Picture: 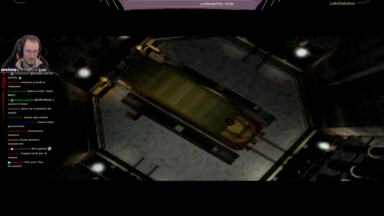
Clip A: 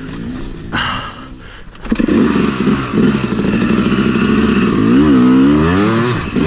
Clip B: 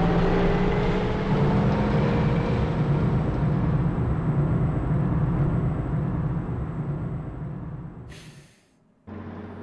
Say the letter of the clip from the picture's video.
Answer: B